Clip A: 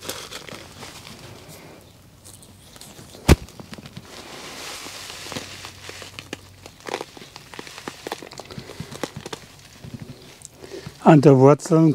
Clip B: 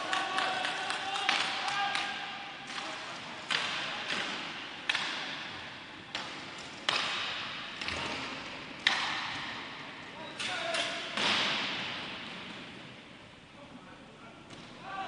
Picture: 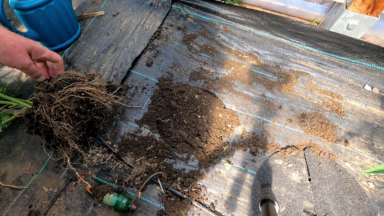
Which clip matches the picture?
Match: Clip A